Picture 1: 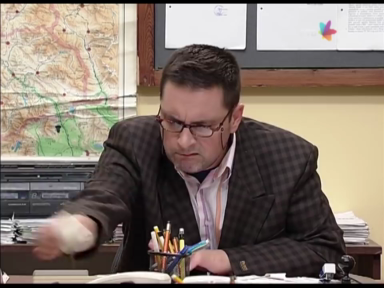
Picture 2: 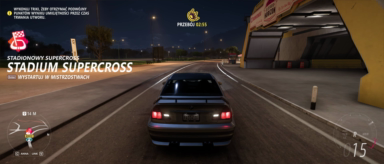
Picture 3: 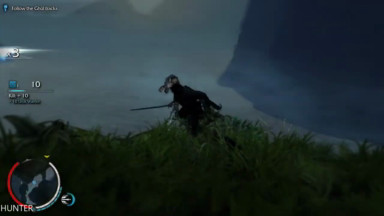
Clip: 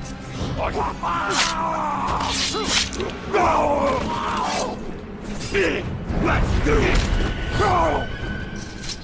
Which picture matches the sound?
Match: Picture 3